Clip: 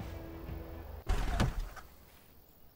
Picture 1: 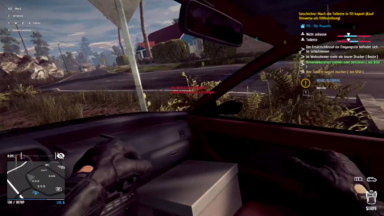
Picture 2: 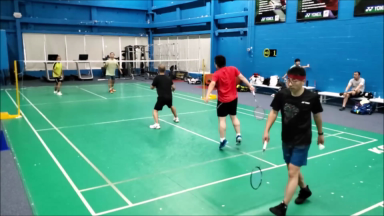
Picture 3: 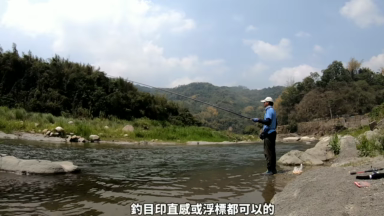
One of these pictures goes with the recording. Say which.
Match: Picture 1